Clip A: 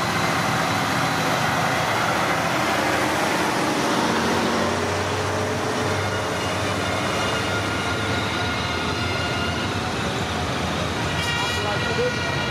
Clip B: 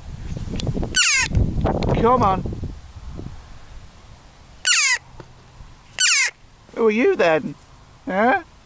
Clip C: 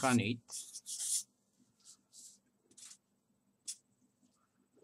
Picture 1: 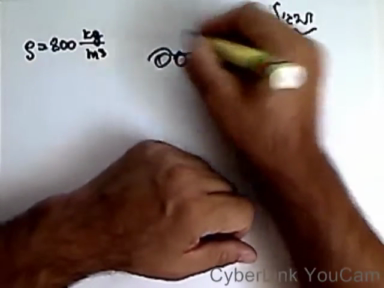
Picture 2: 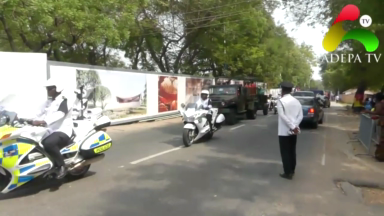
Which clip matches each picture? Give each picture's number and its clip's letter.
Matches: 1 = C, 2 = A